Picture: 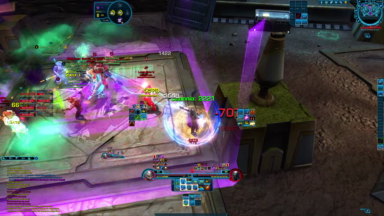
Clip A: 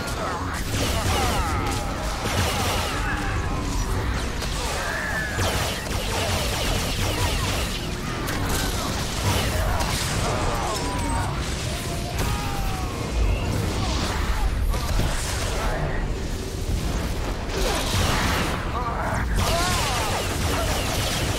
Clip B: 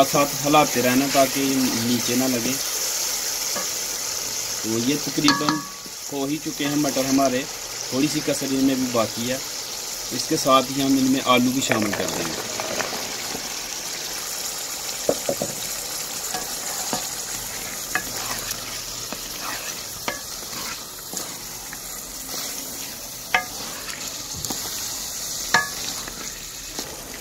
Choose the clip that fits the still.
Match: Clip A